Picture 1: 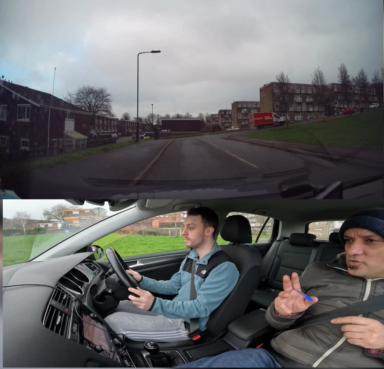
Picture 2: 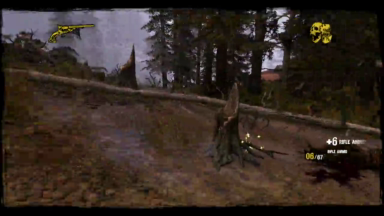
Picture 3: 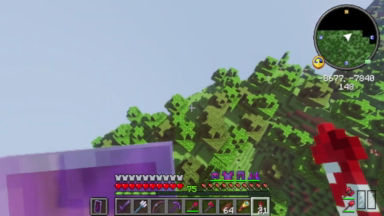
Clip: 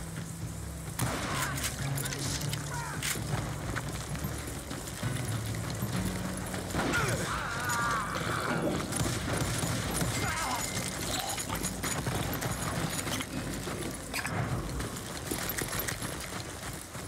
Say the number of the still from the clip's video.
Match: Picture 2